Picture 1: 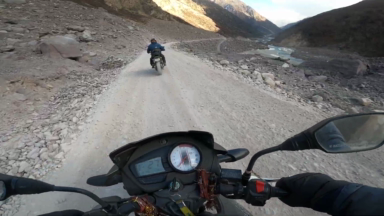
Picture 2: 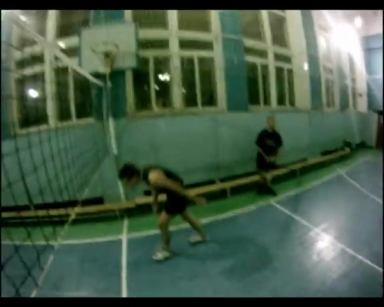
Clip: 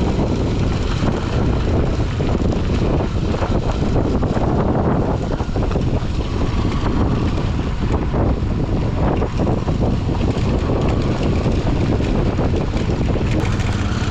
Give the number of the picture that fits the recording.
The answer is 1